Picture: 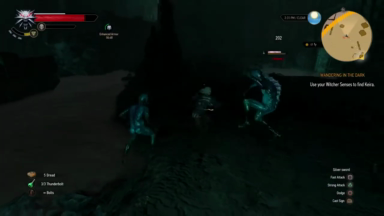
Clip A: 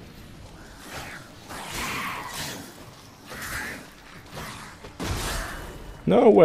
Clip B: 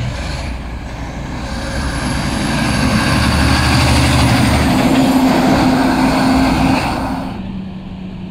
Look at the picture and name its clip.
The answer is A